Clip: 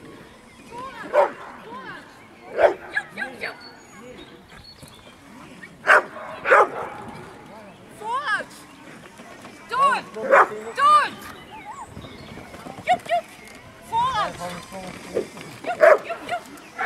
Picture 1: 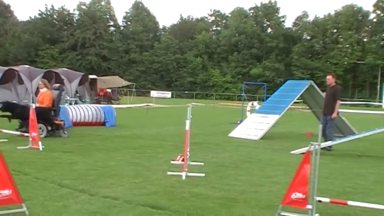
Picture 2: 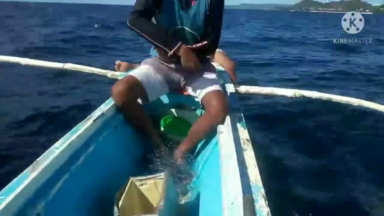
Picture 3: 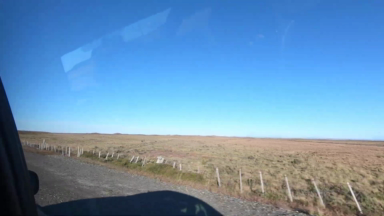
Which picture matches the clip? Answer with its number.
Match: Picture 1